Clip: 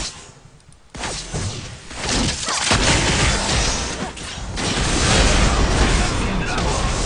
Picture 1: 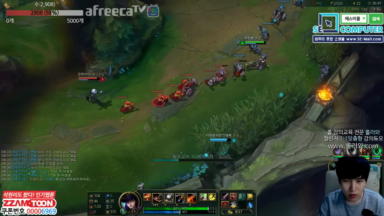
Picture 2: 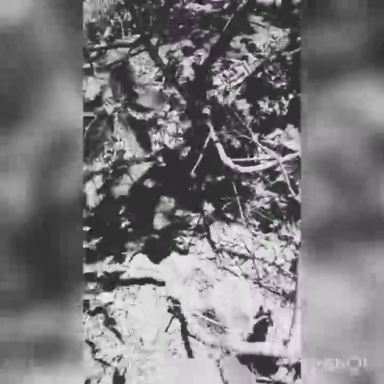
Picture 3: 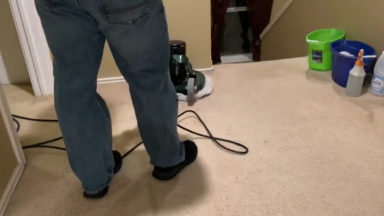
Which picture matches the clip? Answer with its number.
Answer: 1